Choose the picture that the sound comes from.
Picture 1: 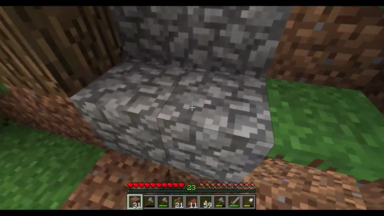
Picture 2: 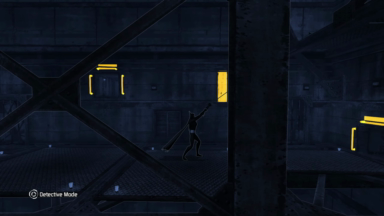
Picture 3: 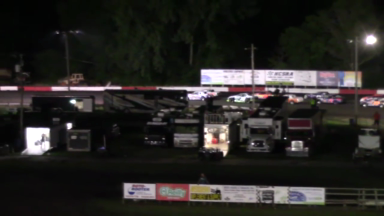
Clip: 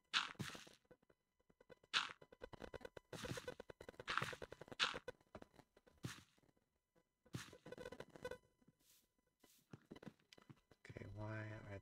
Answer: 1